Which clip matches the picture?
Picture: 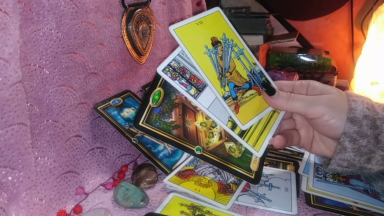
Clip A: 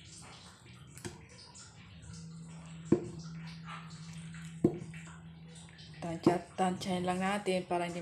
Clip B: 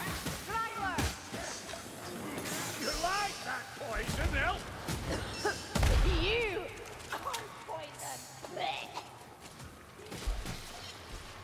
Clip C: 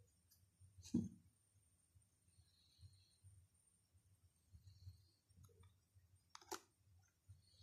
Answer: C